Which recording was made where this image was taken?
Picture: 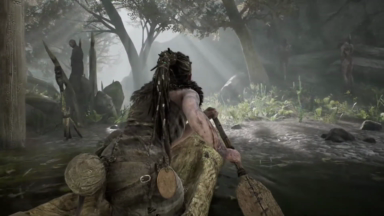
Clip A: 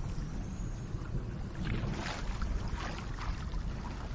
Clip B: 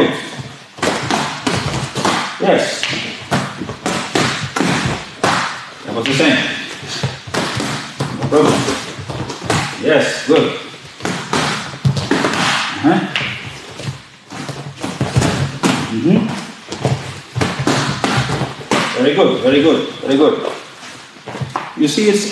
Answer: A